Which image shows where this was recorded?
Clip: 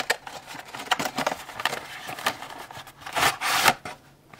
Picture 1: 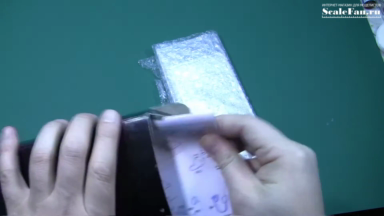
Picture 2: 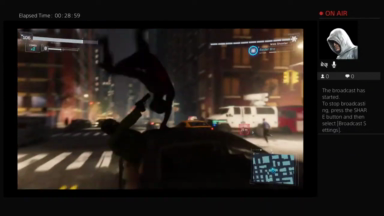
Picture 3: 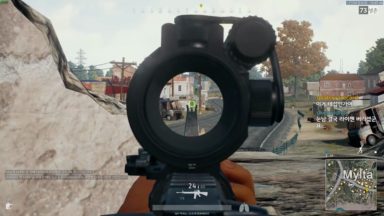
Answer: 1